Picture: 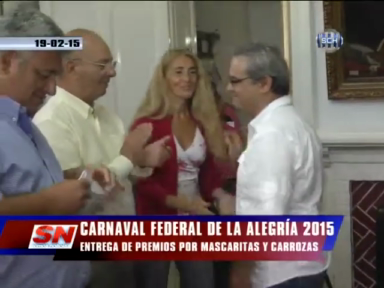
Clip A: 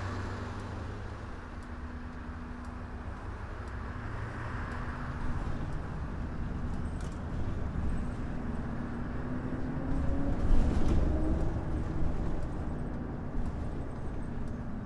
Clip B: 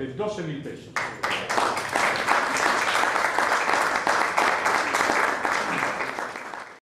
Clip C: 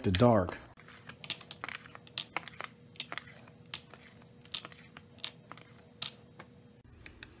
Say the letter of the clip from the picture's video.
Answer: B